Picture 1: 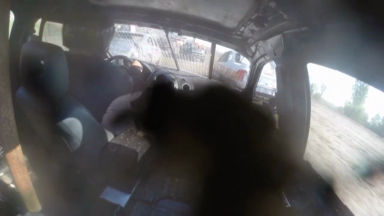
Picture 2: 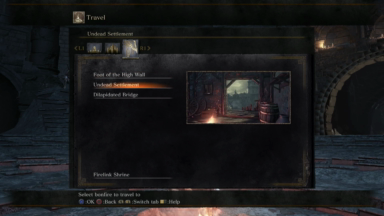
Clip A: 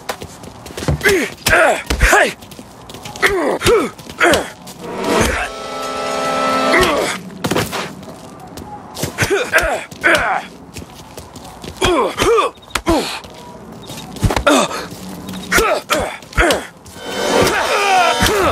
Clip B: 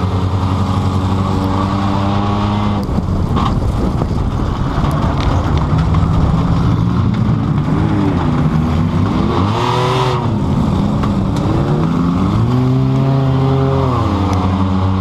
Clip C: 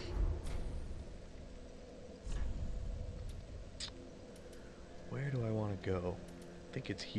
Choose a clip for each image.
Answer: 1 B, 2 C